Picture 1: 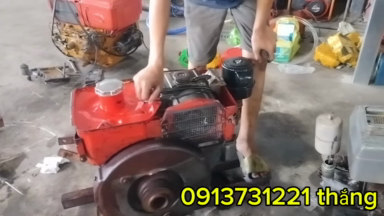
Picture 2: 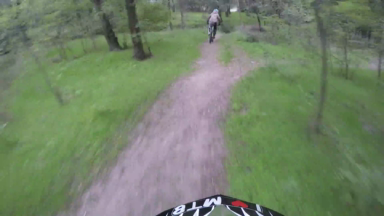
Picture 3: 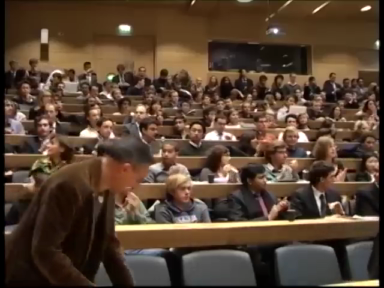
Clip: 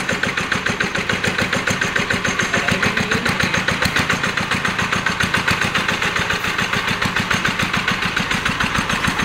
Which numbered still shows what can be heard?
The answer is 1